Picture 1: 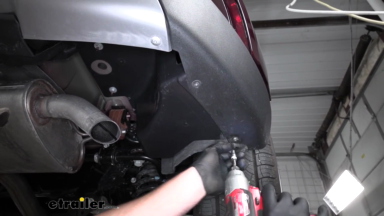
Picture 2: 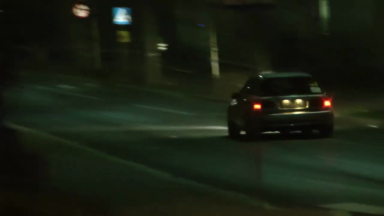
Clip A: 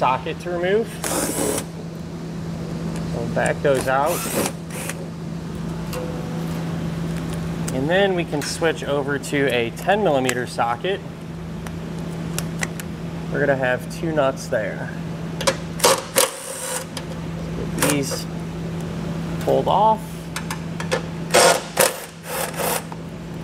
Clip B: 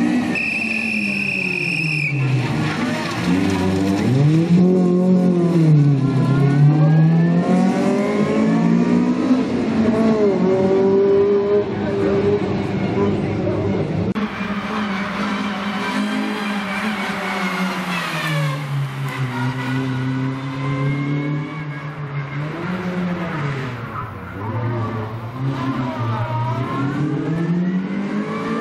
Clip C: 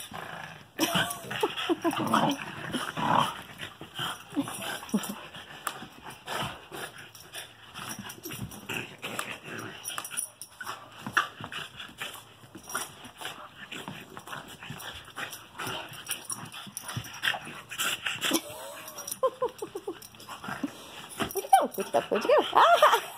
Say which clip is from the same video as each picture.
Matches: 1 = A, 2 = B